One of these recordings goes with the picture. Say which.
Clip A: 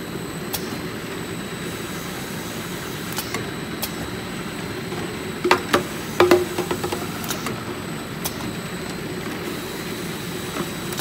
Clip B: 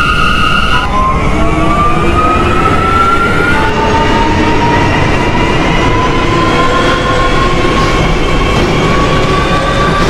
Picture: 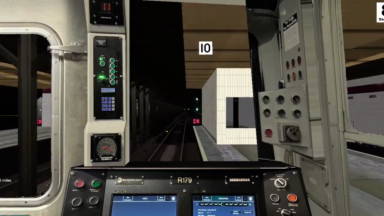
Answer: B